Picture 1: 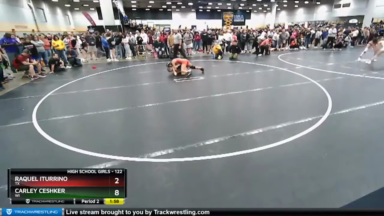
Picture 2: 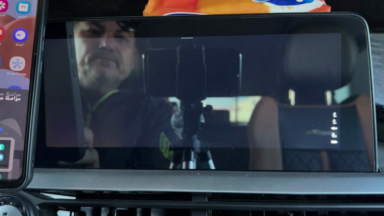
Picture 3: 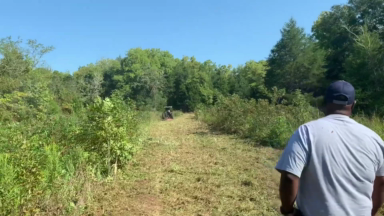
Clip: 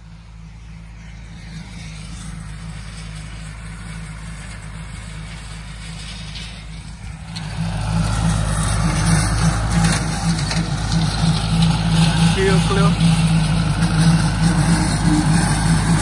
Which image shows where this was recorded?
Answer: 3